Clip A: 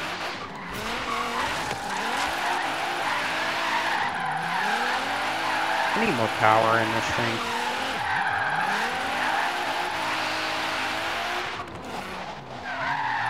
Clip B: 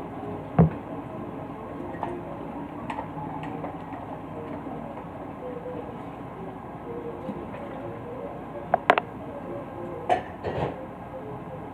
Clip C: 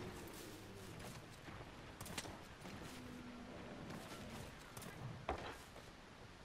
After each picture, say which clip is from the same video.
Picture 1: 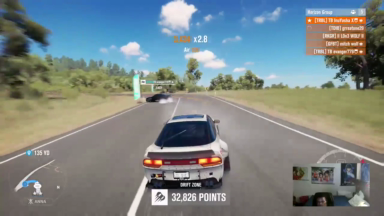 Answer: A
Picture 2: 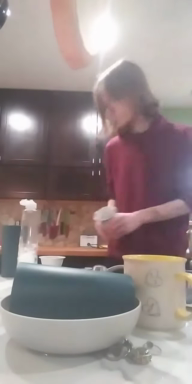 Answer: B